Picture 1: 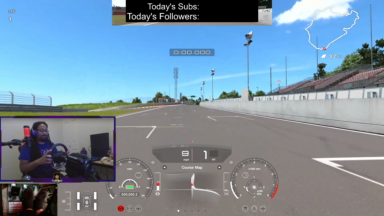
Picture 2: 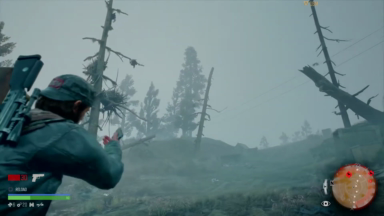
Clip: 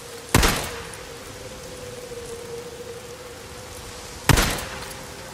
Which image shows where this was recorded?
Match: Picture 2